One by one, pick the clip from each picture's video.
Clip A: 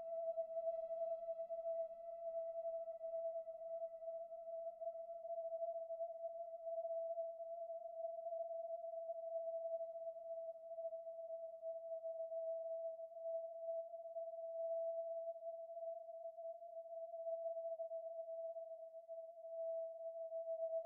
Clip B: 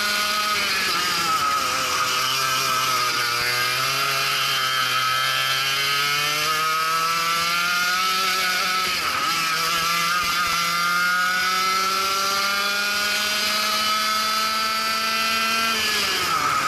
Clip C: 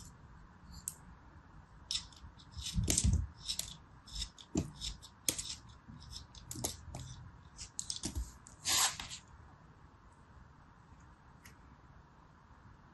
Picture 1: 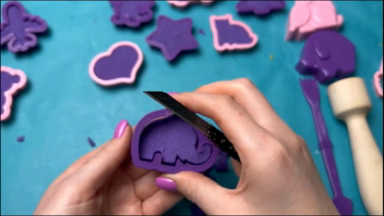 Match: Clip C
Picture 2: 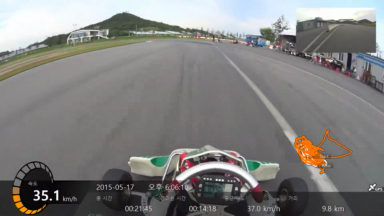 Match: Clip B